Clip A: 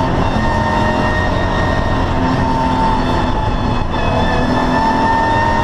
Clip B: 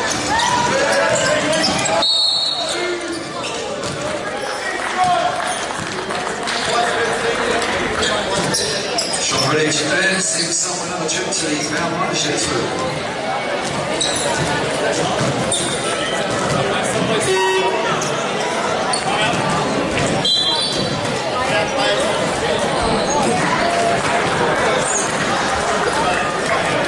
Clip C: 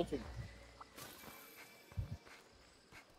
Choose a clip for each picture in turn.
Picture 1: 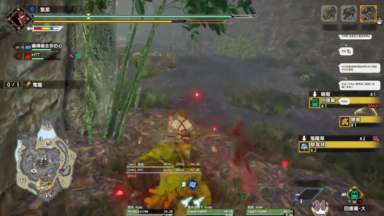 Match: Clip C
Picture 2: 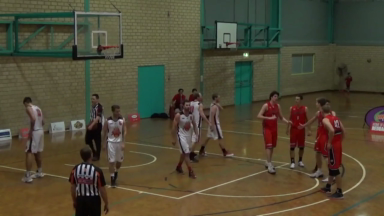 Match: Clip B